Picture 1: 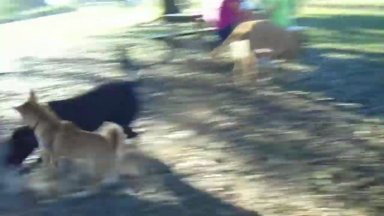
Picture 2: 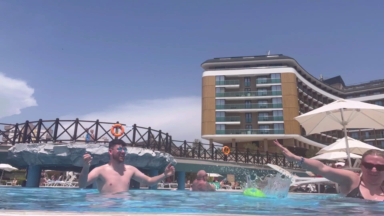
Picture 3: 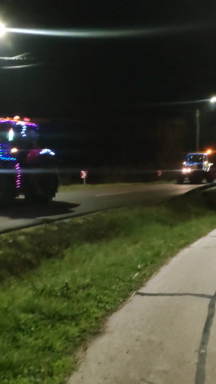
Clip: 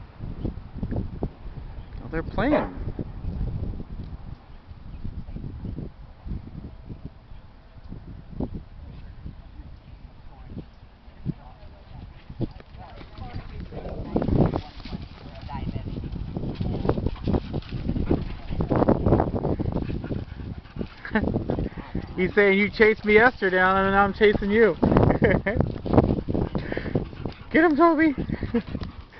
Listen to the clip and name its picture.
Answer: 1